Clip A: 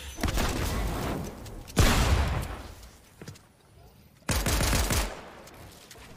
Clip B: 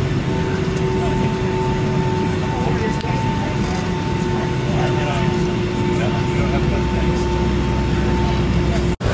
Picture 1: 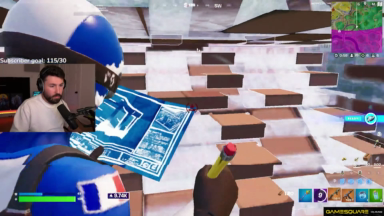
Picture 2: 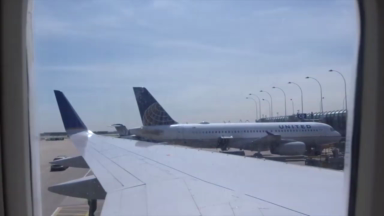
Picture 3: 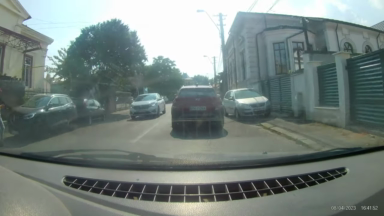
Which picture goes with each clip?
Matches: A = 1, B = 2